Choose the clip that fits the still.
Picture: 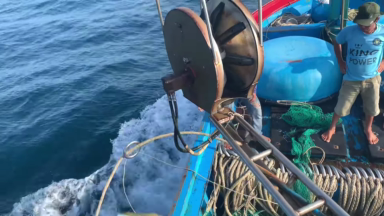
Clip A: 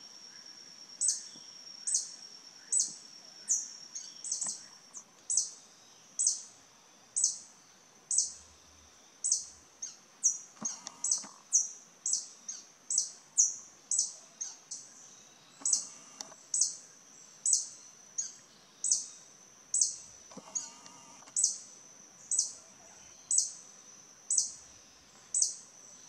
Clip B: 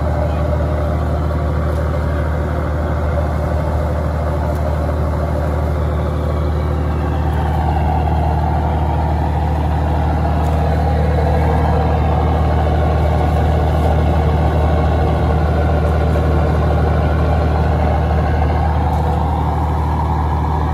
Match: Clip B